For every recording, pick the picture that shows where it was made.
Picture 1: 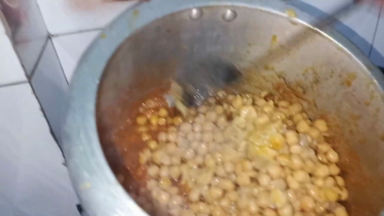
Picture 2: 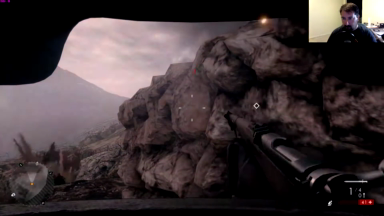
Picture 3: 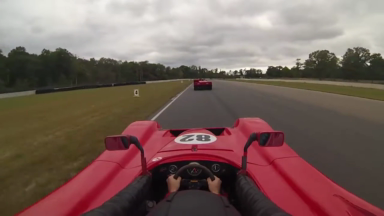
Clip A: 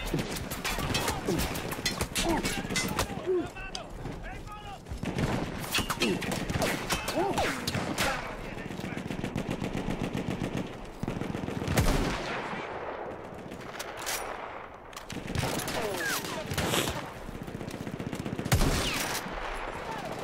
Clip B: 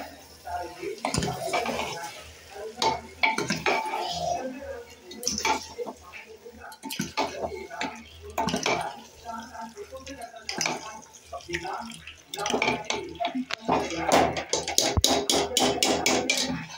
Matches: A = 2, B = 1